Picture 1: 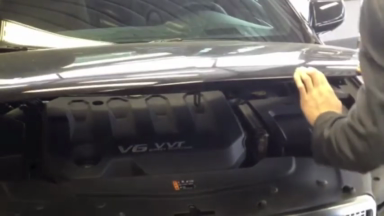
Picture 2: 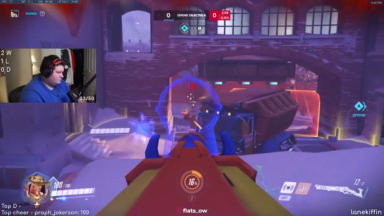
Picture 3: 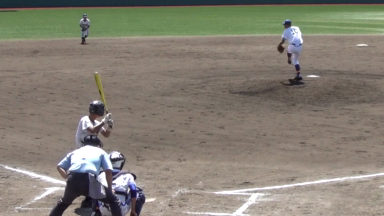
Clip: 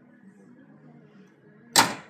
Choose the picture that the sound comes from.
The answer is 1